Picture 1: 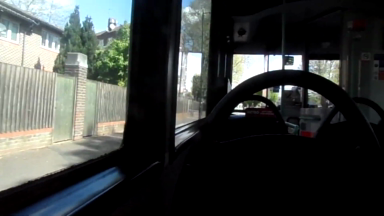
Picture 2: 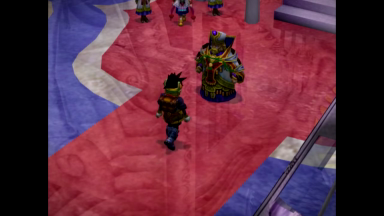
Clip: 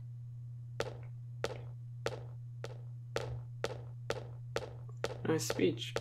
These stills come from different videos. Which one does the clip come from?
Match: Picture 2